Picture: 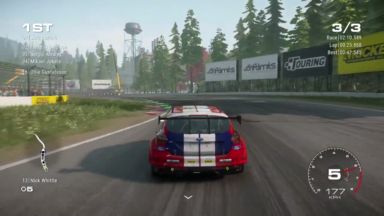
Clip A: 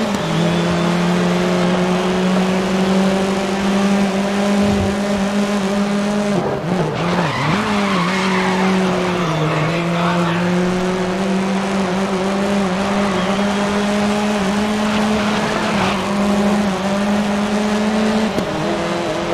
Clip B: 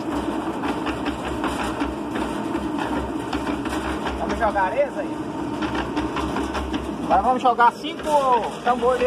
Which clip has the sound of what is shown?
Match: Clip A